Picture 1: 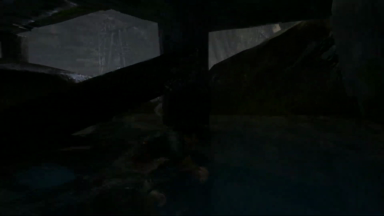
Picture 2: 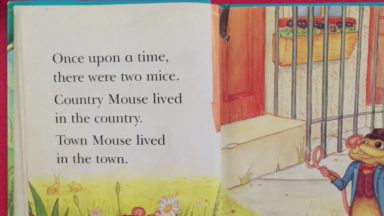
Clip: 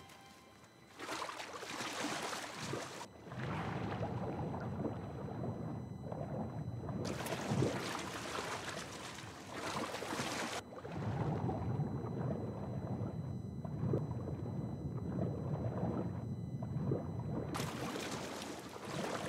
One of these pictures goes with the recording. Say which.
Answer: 1